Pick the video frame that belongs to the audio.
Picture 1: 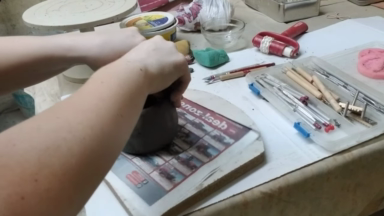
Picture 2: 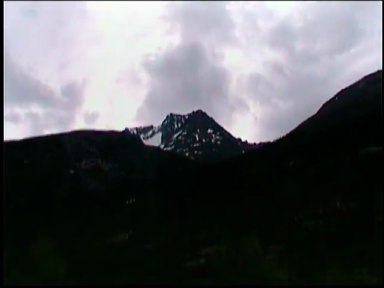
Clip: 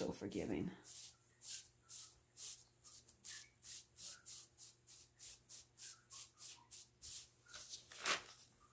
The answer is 1